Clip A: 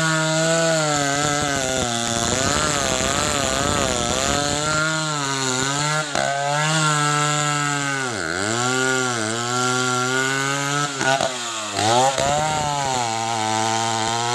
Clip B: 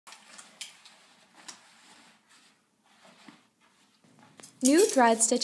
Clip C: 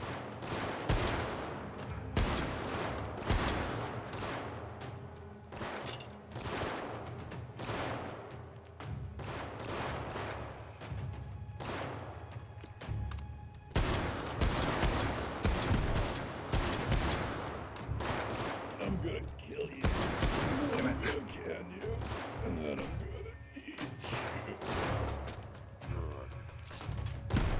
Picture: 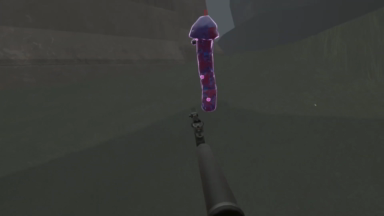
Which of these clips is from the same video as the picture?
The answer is C